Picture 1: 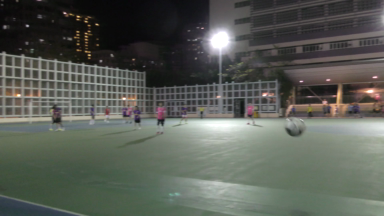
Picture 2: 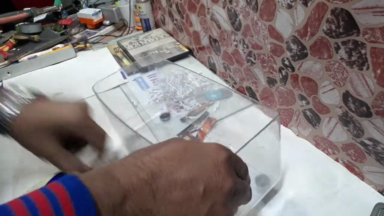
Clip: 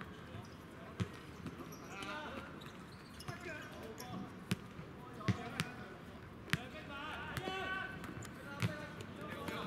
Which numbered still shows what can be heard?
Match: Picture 1